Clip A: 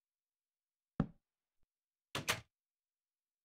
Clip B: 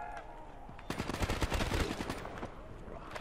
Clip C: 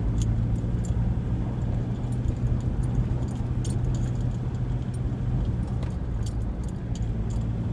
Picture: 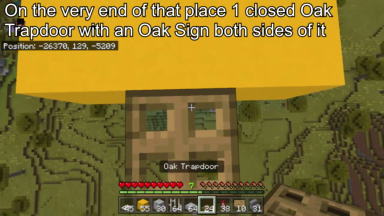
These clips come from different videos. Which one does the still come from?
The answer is A